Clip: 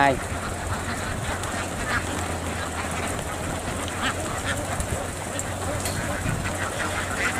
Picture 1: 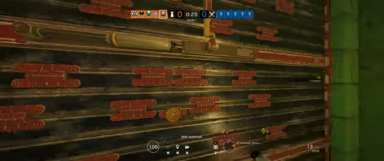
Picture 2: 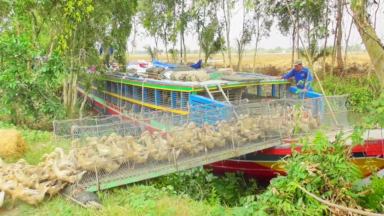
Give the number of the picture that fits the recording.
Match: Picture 2